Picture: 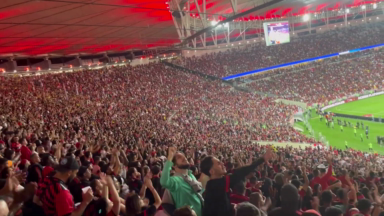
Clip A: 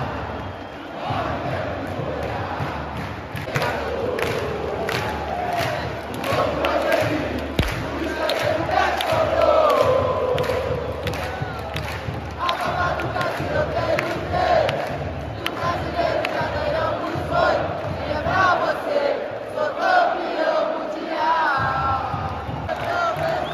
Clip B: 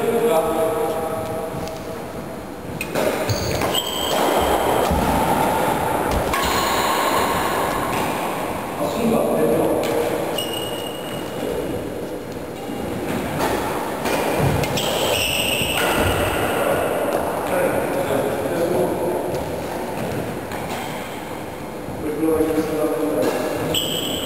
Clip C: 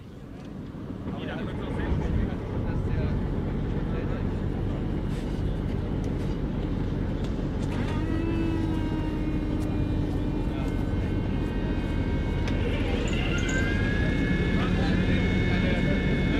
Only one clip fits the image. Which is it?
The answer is A